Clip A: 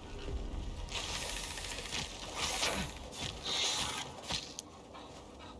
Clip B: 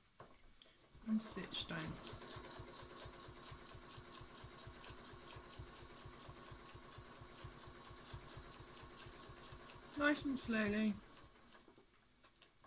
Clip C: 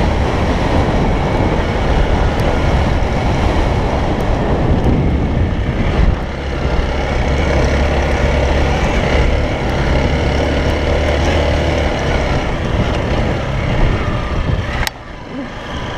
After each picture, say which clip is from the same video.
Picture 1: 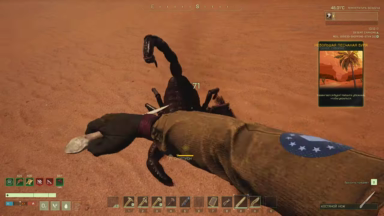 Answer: A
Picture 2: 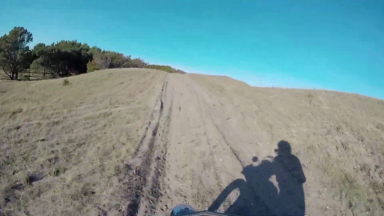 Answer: C